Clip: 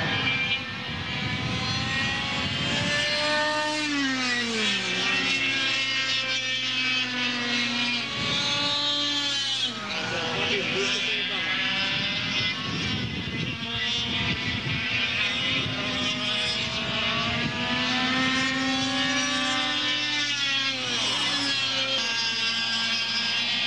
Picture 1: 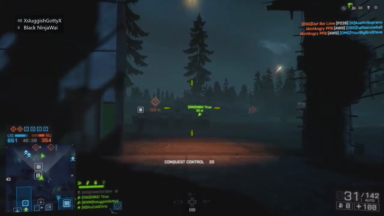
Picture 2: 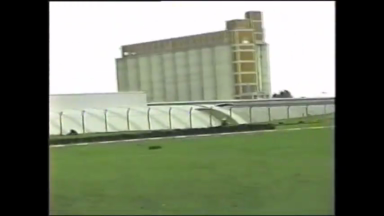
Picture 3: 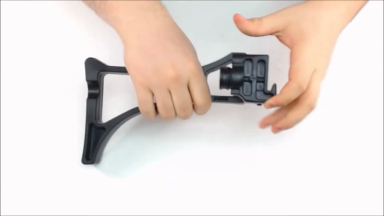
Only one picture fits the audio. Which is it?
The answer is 2